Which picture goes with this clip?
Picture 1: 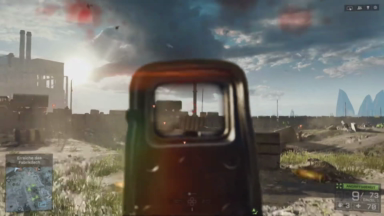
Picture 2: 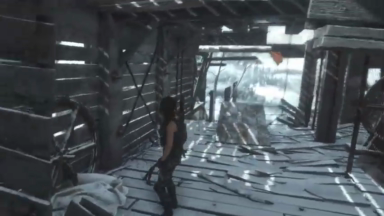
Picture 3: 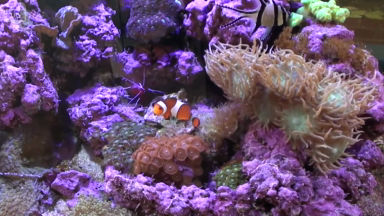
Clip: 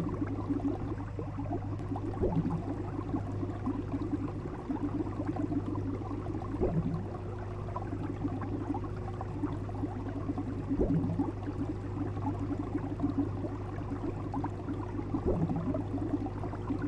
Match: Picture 3